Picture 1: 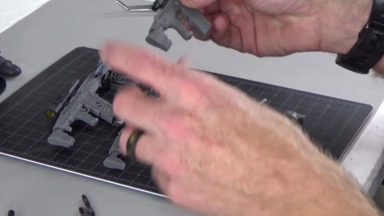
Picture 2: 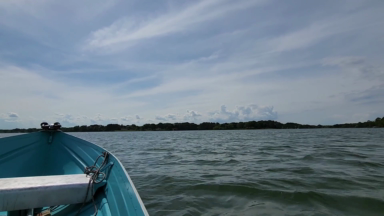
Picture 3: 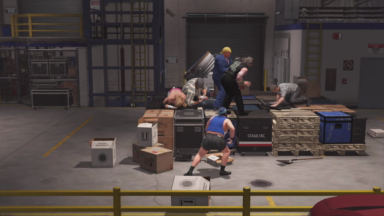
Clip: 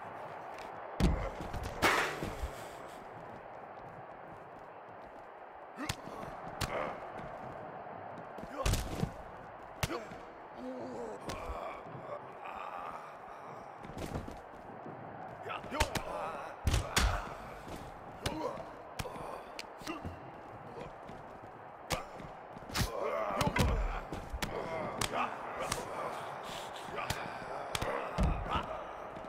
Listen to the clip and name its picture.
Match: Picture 3